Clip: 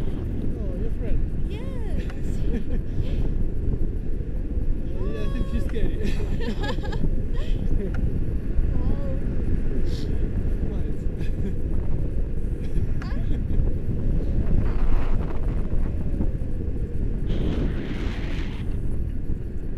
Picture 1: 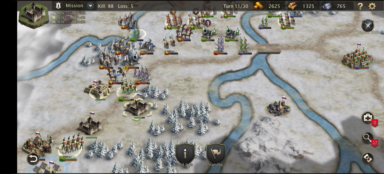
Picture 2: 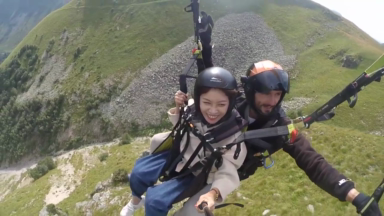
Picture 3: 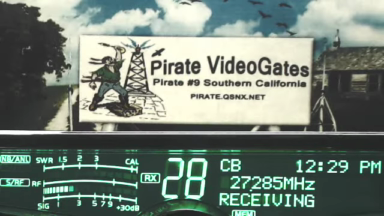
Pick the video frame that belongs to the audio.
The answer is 2